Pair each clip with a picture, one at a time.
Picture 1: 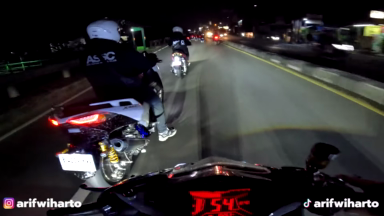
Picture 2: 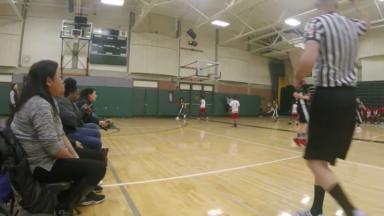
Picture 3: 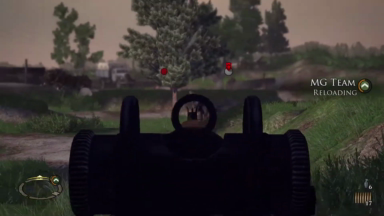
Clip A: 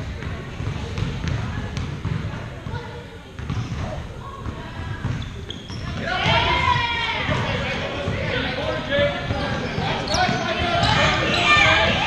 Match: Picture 2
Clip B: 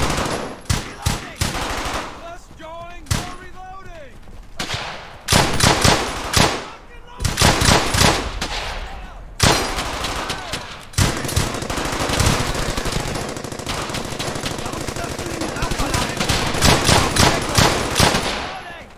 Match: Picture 3